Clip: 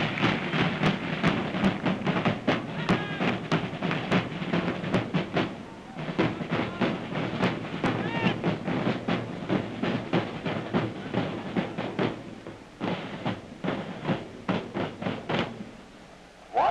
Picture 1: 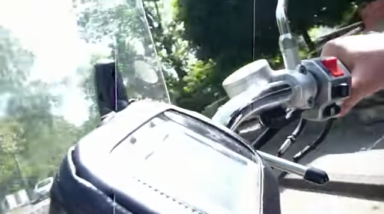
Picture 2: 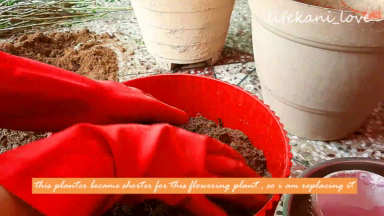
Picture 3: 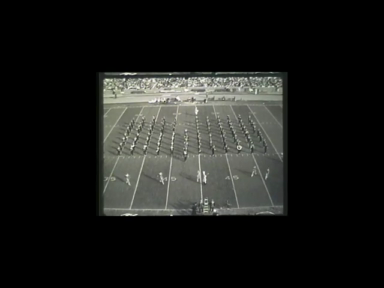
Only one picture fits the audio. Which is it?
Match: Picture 3